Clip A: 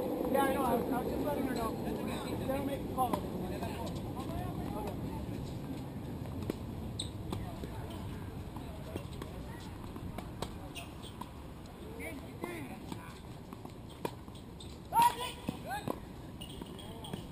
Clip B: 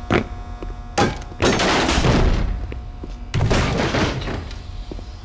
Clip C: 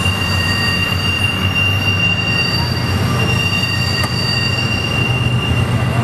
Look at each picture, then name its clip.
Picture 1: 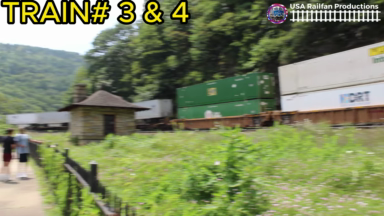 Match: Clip C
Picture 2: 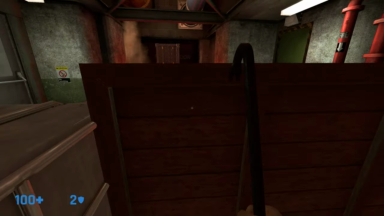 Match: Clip B